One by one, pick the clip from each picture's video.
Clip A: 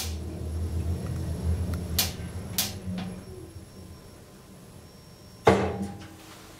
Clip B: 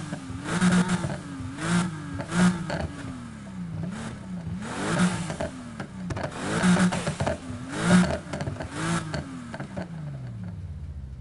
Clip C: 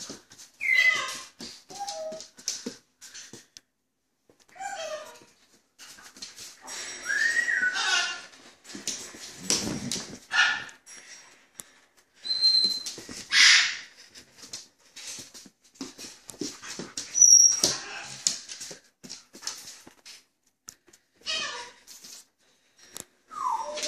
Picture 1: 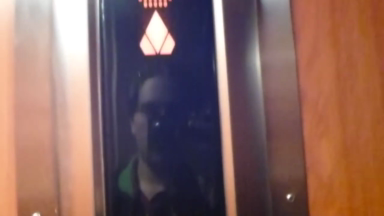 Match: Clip A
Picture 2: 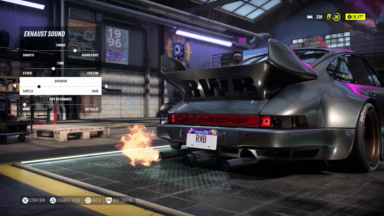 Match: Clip B